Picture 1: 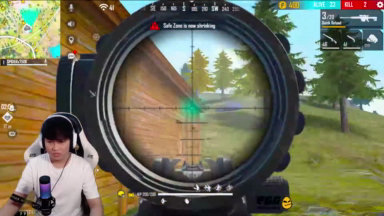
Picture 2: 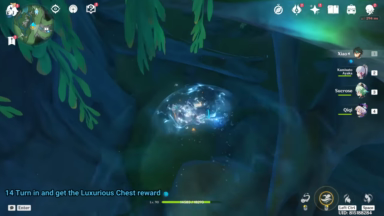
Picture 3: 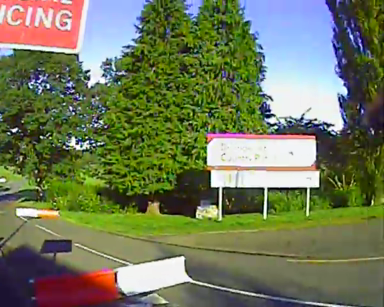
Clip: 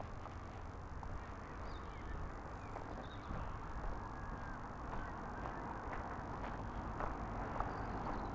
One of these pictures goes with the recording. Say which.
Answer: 3